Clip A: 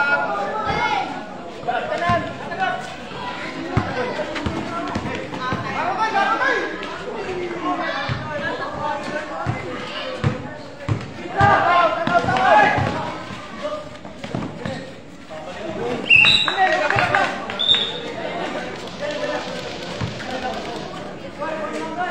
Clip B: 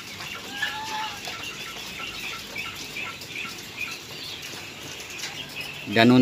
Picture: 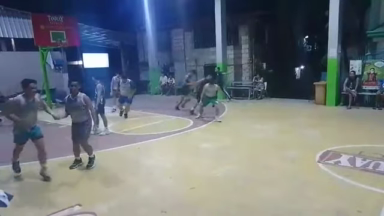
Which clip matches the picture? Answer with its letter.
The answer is A